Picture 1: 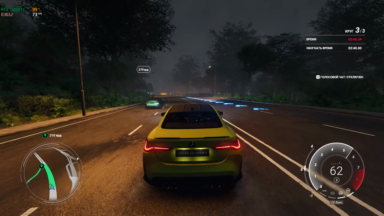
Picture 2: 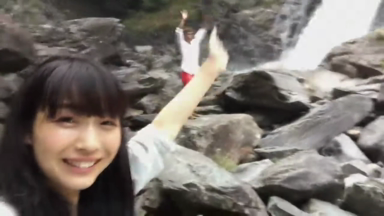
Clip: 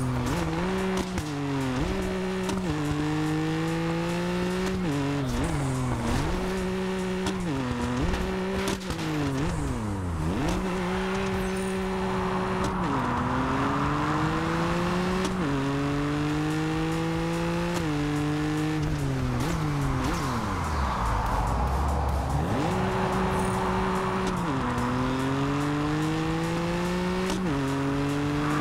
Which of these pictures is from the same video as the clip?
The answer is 1